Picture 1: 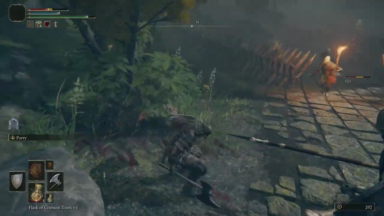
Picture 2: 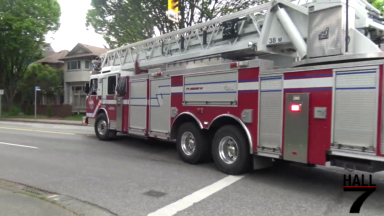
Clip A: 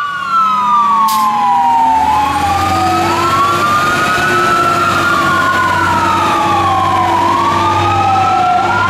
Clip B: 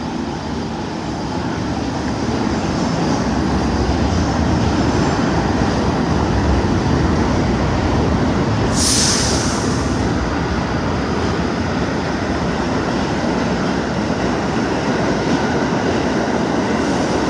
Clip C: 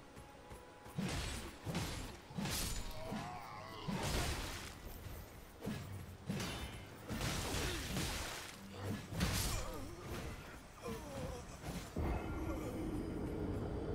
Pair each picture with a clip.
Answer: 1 C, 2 A